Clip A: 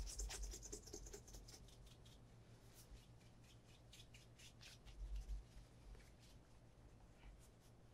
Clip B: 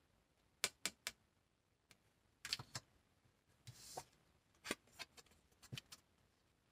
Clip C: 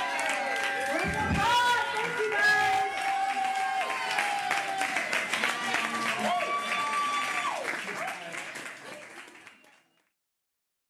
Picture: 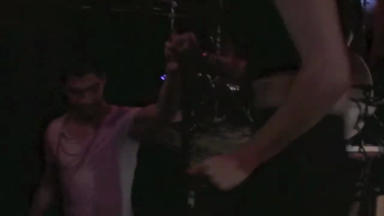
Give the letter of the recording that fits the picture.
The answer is C